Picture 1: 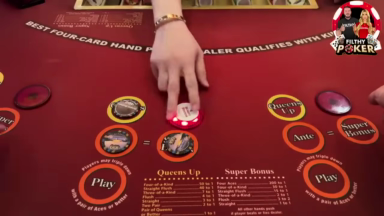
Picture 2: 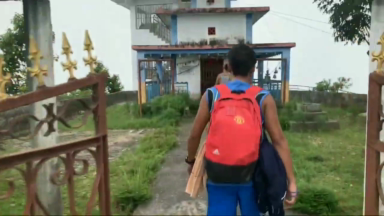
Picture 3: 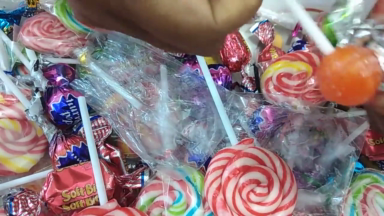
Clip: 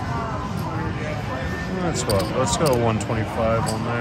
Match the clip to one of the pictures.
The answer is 1